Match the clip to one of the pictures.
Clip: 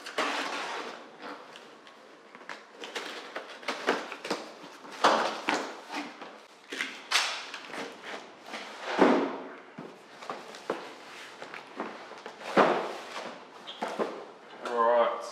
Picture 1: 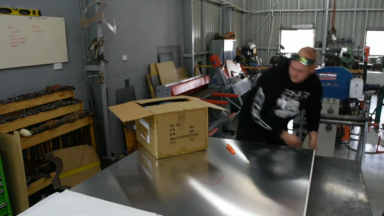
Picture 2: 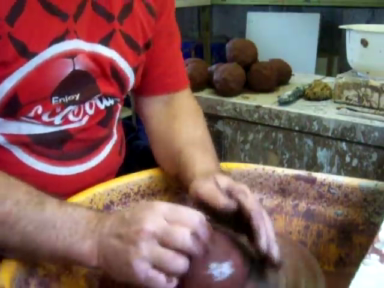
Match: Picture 1